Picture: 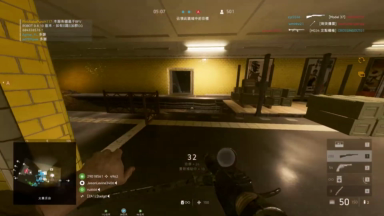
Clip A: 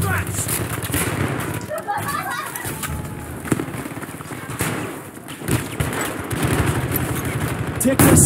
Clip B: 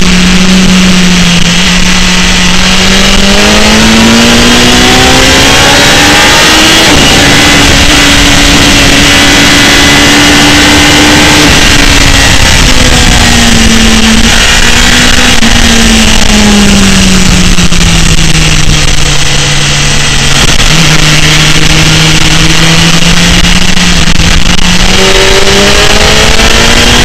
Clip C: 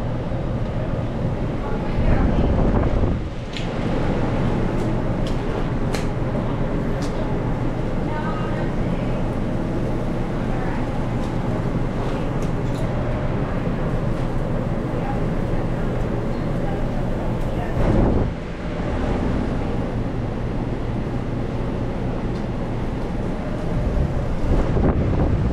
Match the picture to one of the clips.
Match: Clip A